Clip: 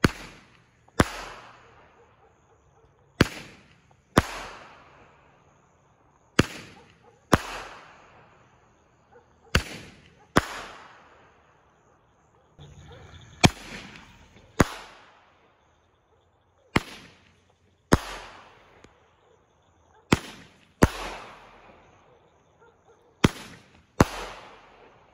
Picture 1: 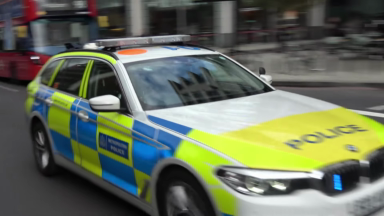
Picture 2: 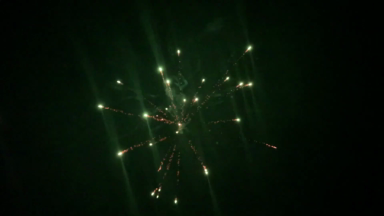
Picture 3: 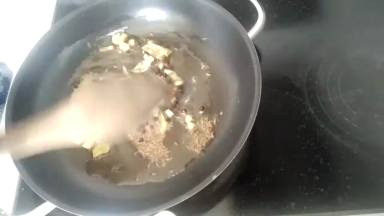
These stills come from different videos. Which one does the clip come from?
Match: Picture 2